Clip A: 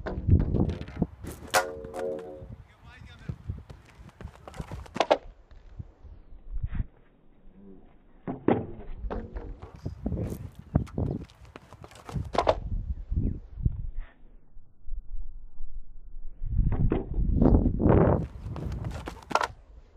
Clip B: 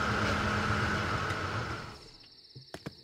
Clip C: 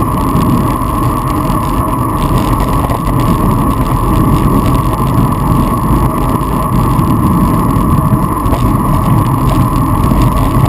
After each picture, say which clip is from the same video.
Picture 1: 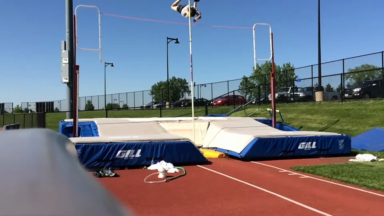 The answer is A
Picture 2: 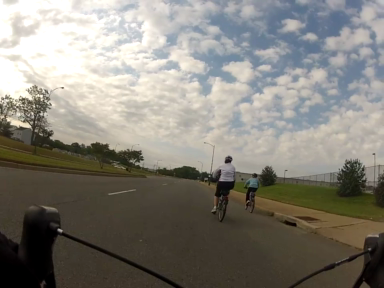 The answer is C